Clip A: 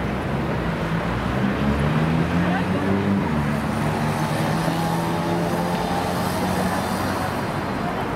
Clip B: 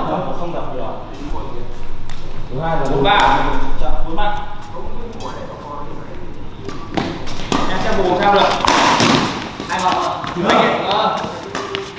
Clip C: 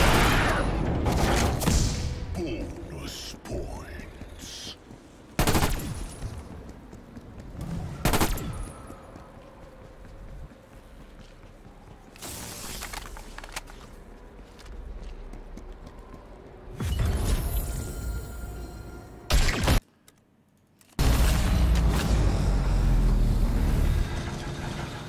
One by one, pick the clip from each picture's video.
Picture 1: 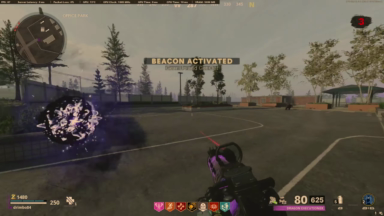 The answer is C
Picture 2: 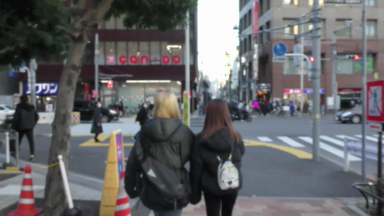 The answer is A